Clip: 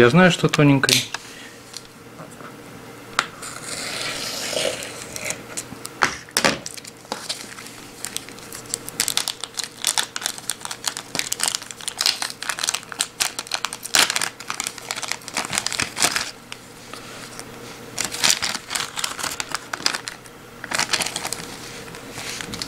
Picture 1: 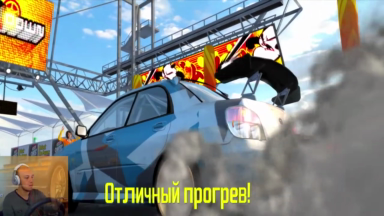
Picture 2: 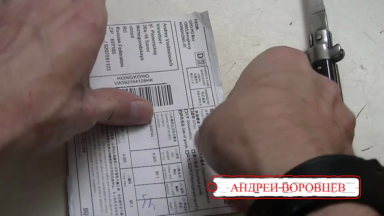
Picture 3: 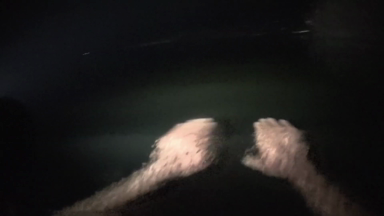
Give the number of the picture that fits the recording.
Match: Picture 2